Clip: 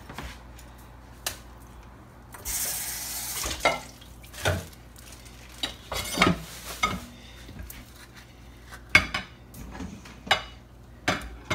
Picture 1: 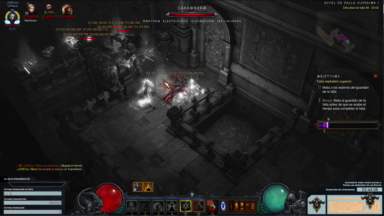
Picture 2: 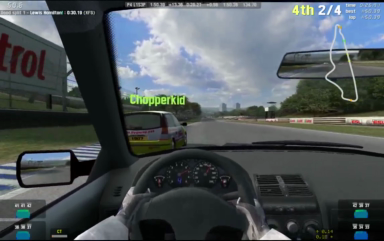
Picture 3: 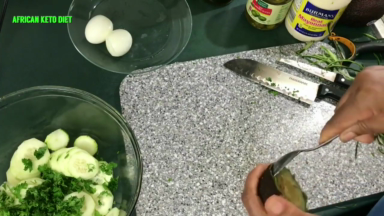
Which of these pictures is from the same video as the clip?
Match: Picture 3